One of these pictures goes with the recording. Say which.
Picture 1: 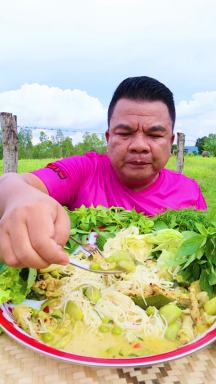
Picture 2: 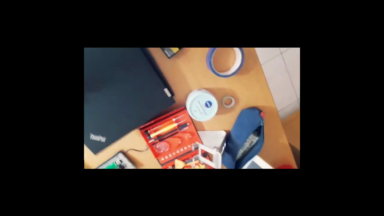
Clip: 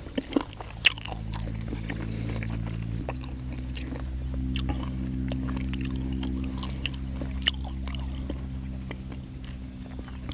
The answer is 1